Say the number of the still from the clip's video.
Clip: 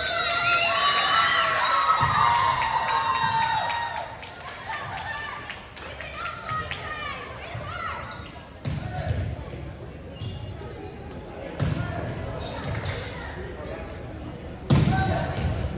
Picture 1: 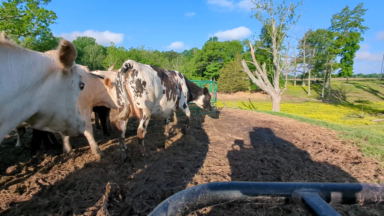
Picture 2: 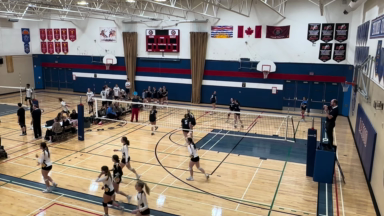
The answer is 2